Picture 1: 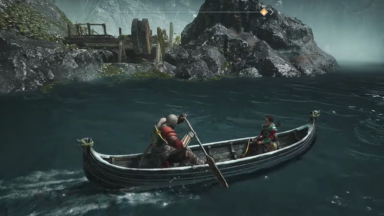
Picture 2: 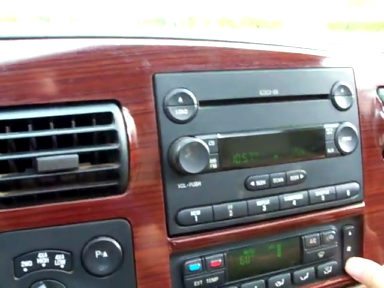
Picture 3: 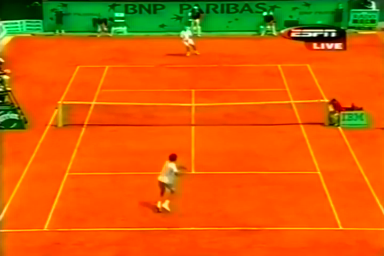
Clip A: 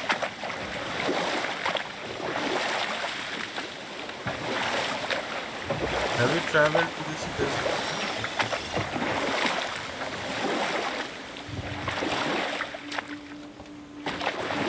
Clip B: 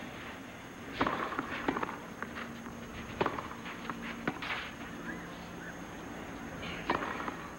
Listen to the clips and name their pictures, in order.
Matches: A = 1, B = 3